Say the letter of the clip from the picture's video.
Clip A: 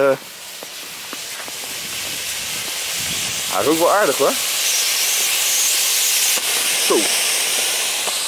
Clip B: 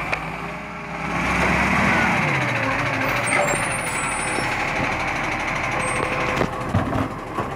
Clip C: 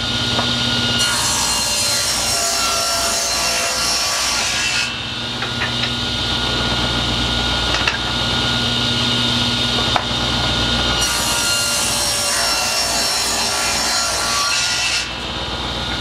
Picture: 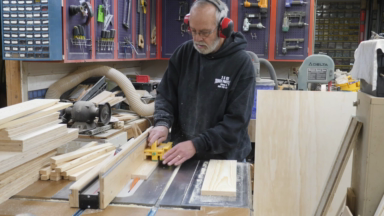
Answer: C